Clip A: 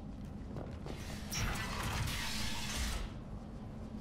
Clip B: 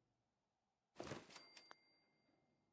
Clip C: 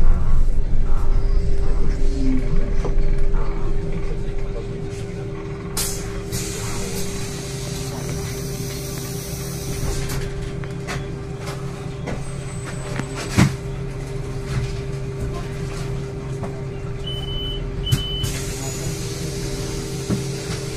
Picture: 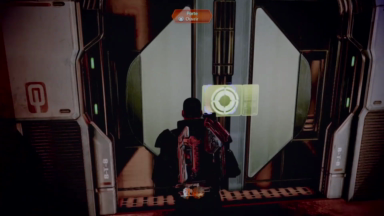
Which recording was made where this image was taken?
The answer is A